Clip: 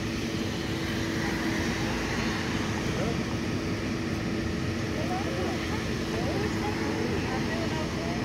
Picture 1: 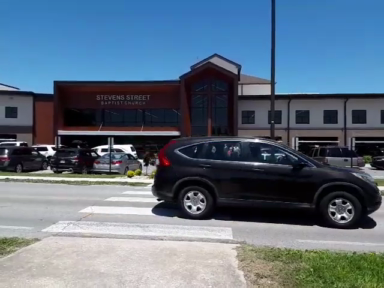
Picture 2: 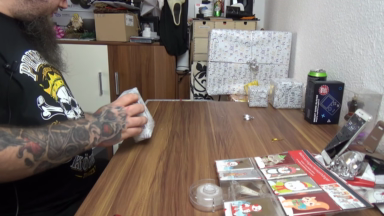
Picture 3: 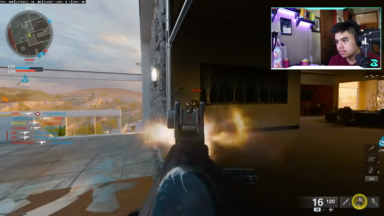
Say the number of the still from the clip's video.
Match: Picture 1